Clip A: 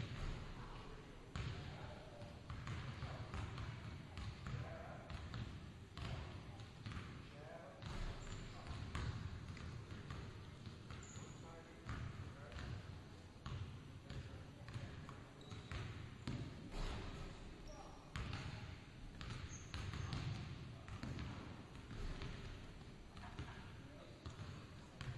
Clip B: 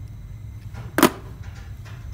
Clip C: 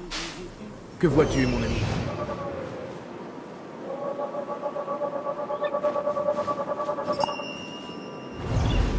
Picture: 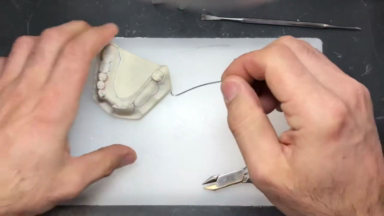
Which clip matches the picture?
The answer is B